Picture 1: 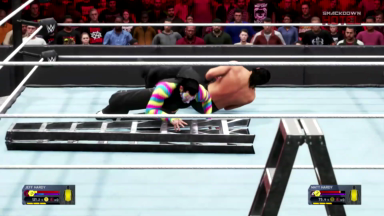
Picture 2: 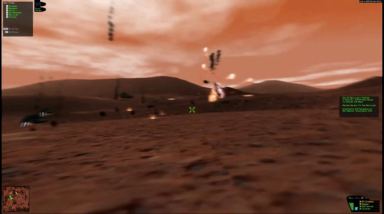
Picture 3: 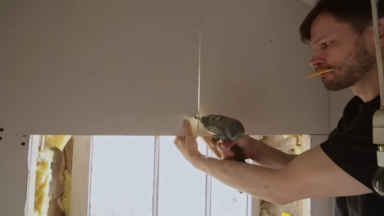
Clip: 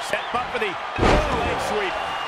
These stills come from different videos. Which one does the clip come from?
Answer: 1